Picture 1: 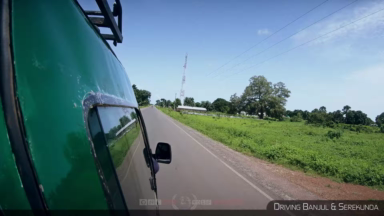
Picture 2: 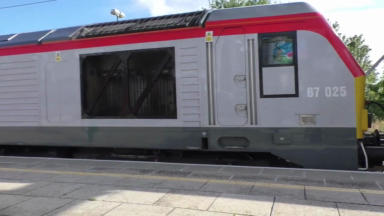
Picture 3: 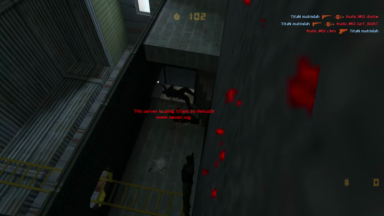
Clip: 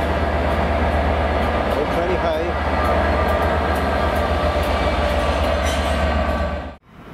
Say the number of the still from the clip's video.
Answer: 2